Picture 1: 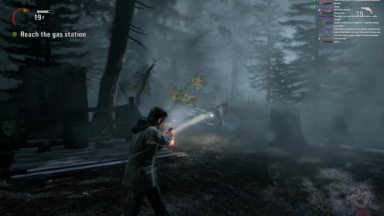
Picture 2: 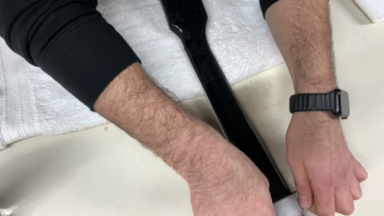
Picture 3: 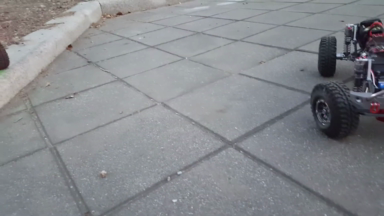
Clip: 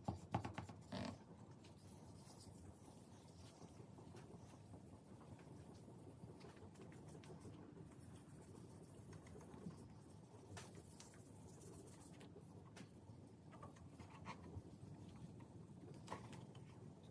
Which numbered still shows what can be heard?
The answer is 2